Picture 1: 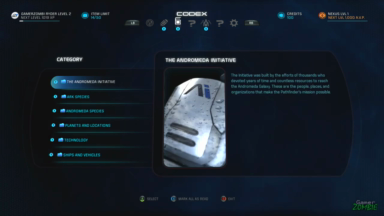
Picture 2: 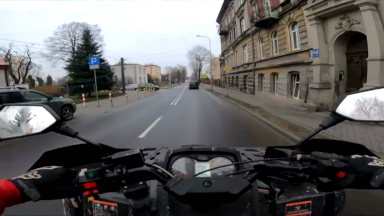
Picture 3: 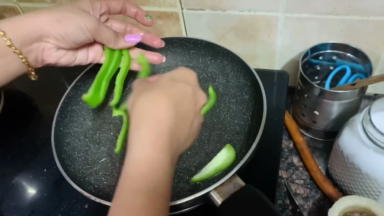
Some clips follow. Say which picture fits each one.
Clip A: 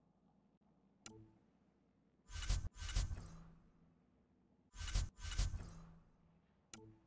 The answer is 1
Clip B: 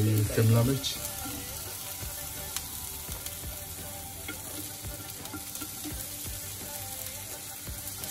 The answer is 3